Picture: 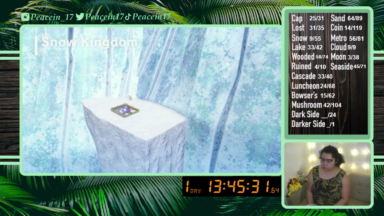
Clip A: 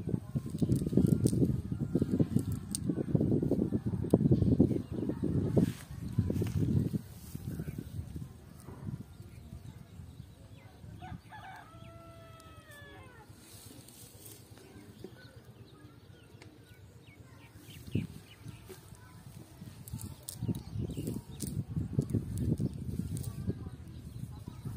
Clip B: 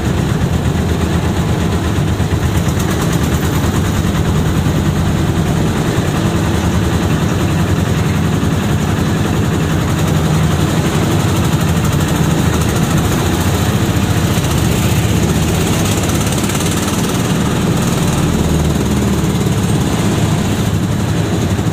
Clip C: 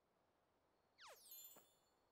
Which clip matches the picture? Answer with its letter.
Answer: C